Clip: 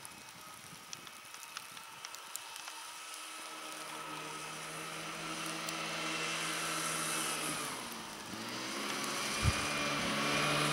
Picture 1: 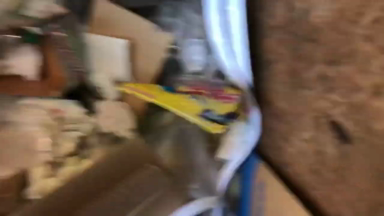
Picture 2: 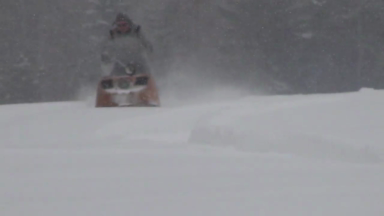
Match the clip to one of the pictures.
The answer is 2